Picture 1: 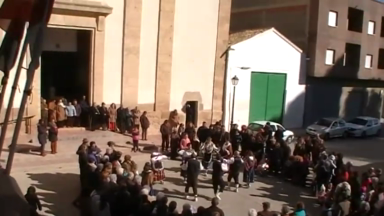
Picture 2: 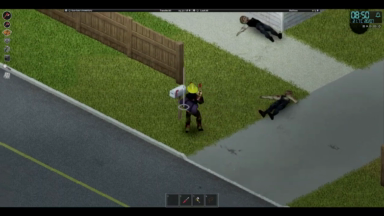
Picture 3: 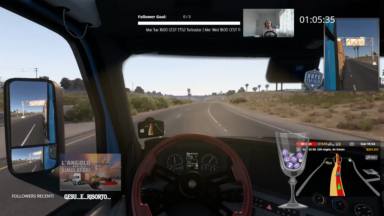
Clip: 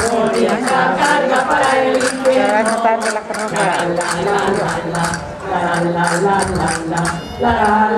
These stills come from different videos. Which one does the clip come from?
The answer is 1